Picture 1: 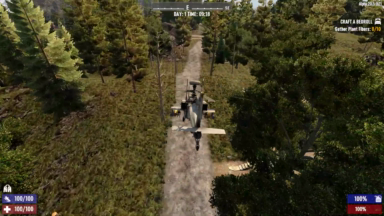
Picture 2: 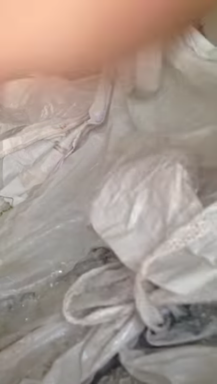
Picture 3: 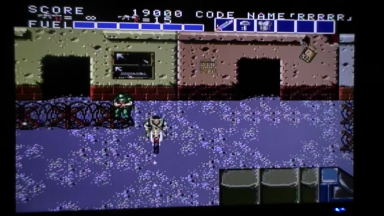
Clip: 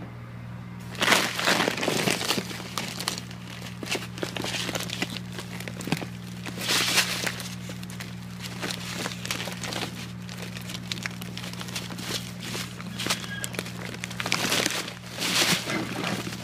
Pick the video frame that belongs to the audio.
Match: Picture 2